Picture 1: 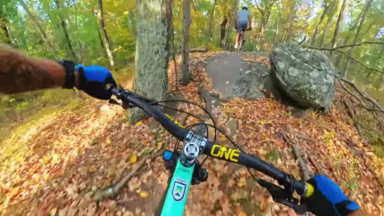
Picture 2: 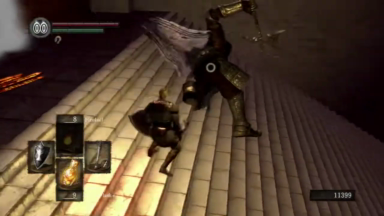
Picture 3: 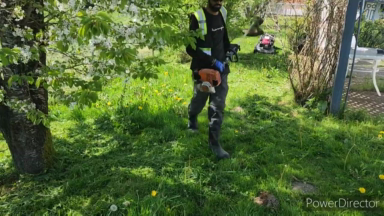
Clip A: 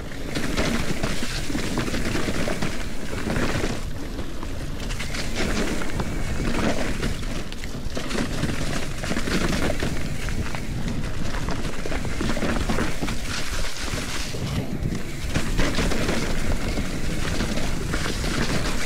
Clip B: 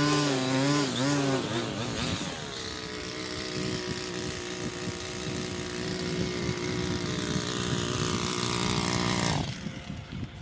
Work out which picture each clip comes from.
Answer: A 1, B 3